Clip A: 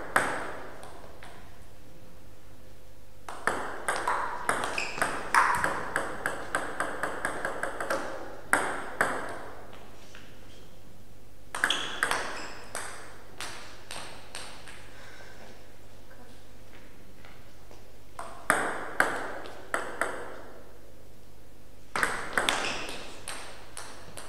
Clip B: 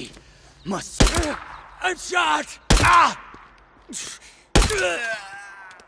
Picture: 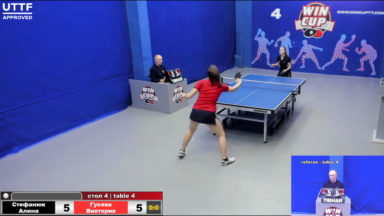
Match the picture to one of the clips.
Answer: A